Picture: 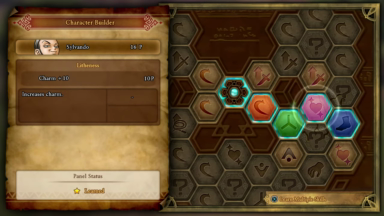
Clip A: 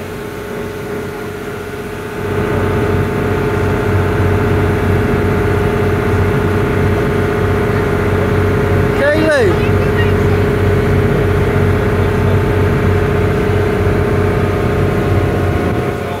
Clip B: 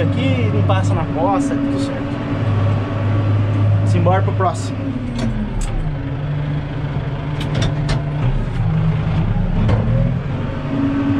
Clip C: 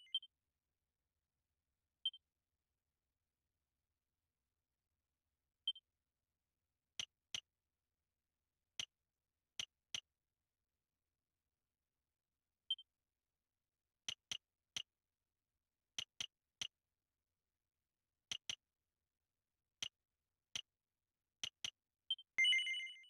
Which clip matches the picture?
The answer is C